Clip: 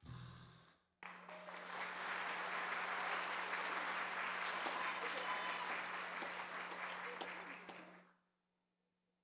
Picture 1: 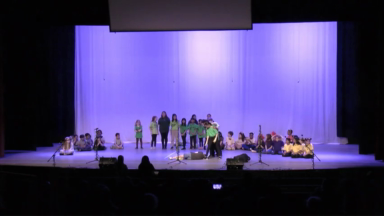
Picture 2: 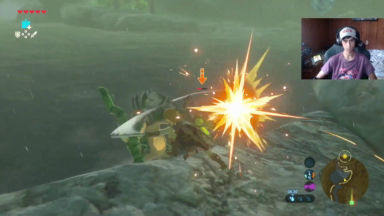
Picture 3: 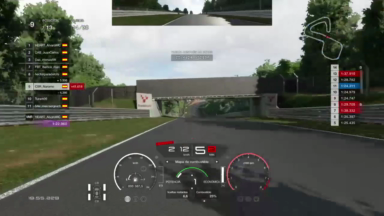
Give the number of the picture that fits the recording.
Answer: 1